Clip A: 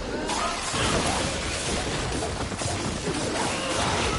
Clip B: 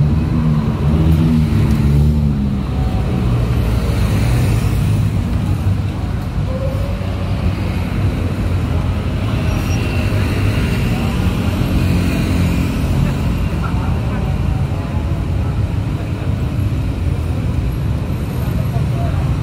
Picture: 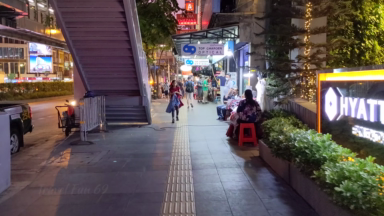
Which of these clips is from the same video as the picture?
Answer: B